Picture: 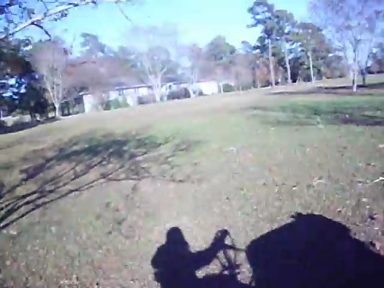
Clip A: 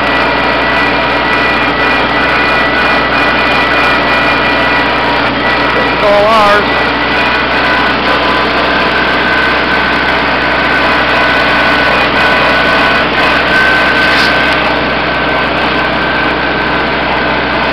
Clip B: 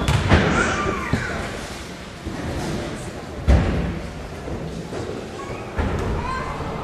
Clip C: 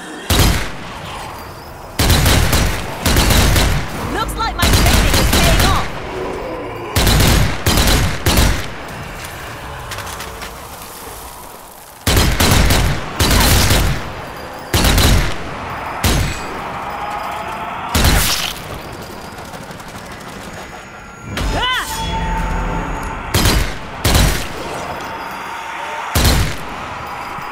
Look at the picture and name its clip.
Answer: A